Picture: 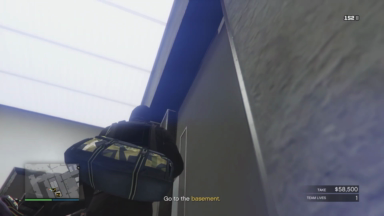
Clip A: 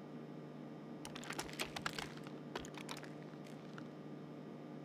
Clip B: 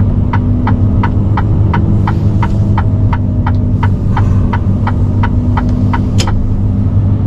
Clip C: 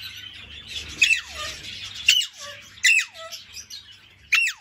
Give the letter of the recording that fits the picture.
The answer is A